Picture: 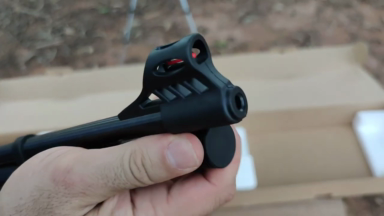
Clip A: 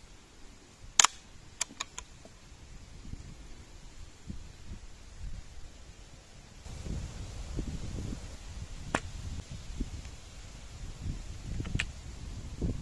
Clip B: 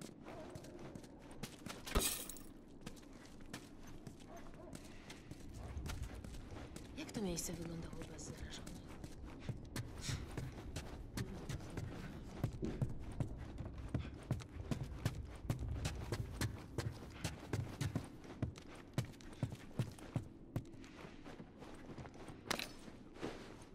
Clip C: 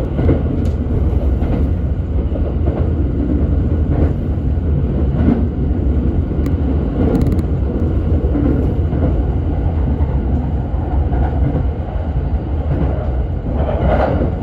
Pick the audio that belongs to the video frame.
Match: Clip A